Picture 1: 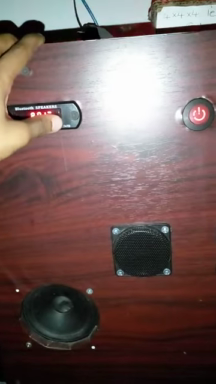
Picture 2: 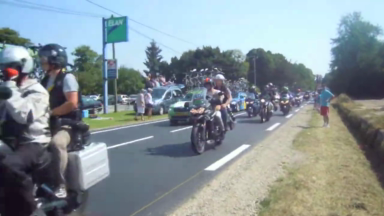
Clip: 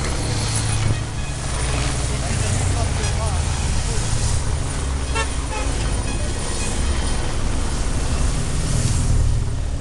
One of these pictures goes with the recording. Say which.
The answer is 2